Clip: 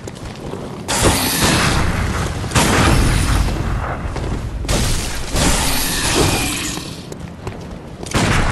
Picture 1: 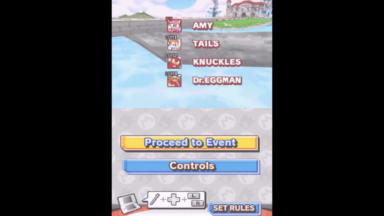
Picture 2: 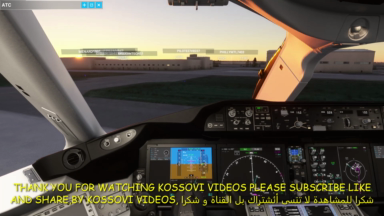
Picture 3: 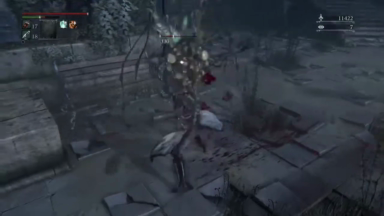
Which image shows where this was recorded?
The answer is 3